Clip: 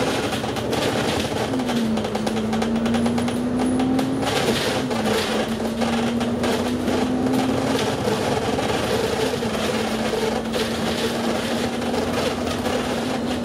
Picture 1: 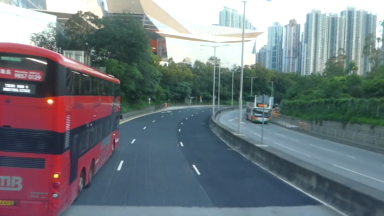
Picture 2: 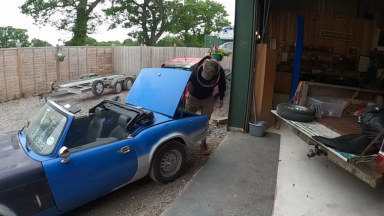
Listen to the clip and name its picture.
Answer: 1